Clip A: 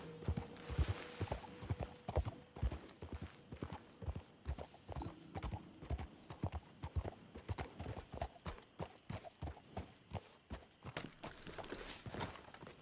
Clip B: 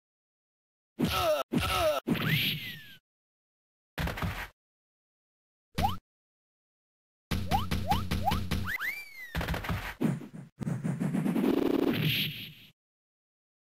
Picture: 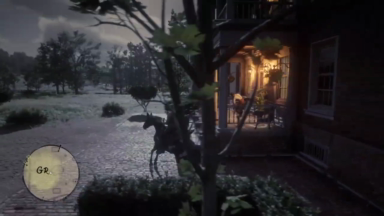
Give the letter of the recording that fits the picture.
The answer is A